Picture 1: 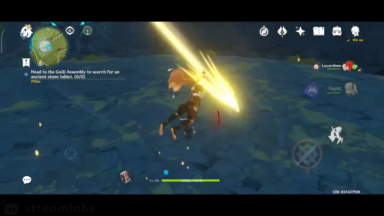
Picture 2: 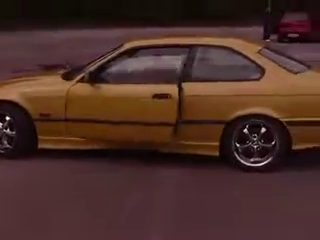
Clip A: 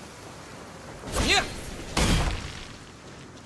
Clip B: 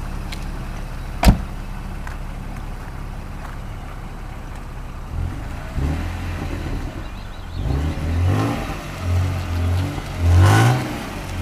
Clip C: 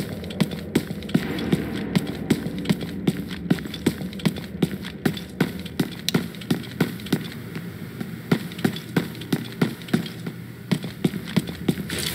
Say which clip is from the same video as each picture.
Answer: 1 A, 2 B